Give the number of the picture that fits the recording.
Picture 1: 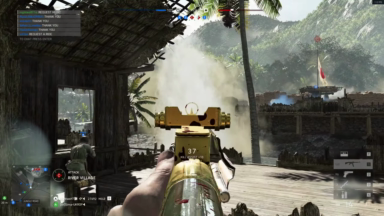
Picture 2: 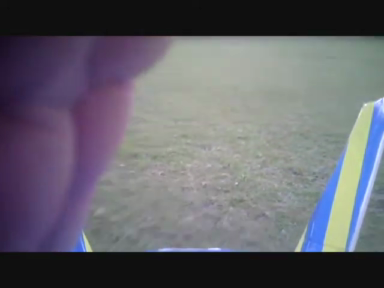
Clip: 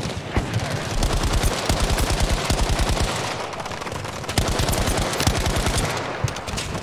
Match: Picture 1